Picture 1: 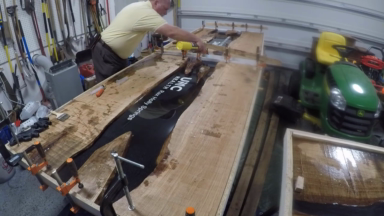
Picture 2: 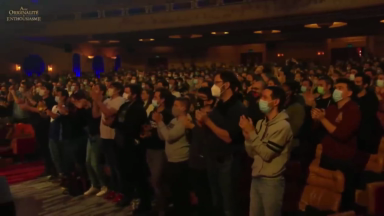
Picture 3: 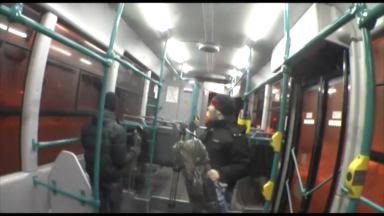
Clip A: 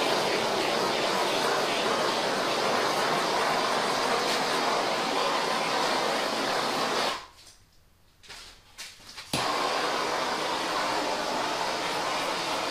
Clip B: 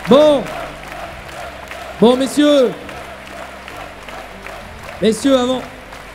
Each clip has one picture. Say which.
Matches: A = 1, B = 2